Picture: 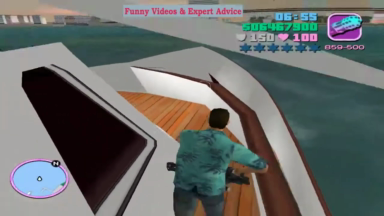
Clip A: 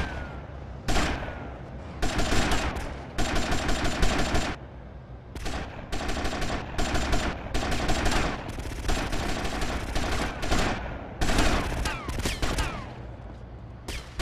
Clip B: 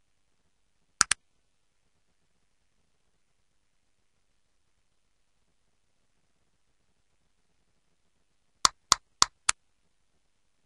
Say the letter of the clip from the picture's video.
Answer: A